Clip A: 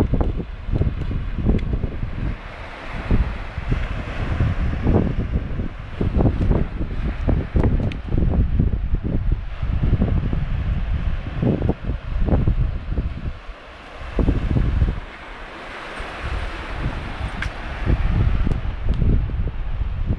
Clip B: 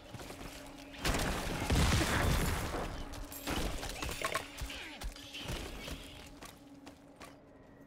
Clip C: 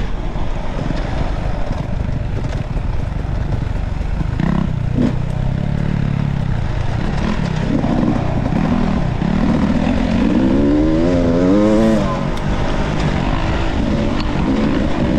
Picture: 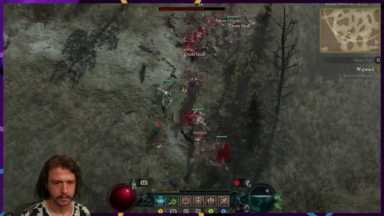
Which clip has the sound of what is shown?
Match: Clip B